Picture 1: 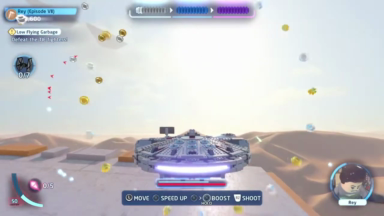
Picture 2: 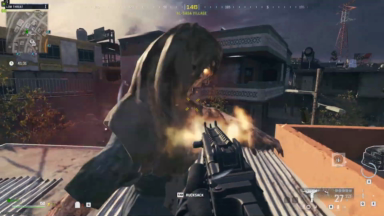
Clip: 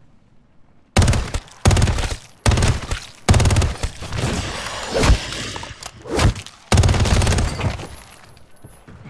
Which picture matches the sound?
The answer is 2